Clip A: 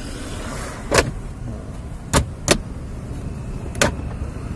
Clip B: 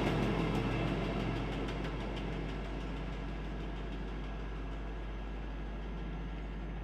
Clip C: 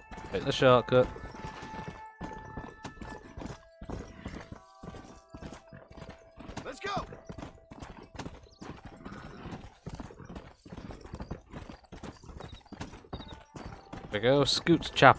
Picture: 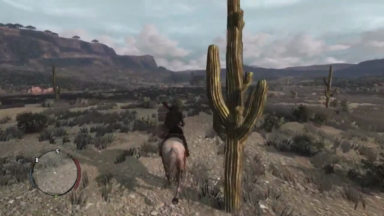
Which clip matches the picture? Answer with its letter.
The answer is C